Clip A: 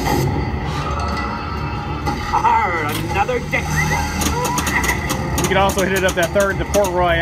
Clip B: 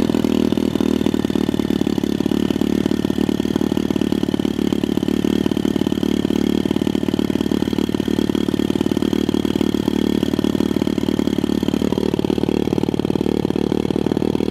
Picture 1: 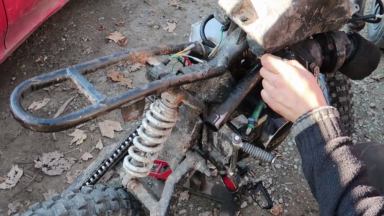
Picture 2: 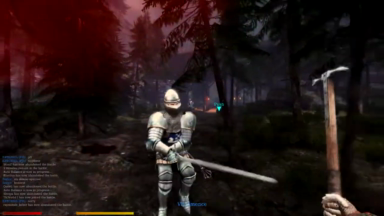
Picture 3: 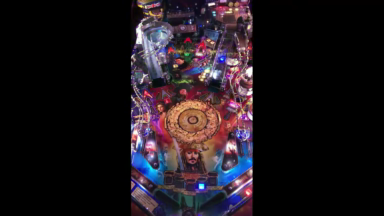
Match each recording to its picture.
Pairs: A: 3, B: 1